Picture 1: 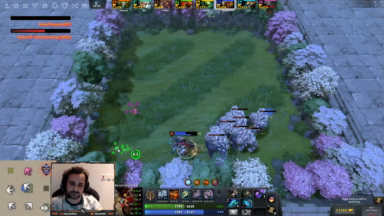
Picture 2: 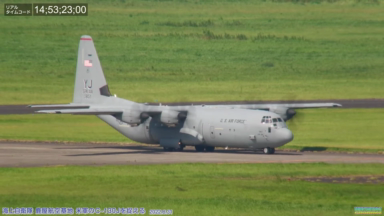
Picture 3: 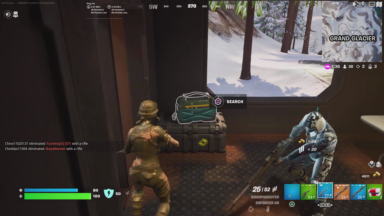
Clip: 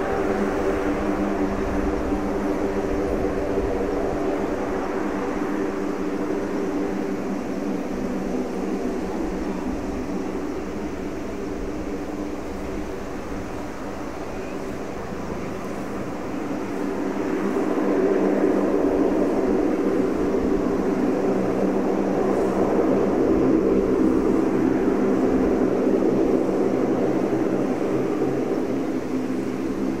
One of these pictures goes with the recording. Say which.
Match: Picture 2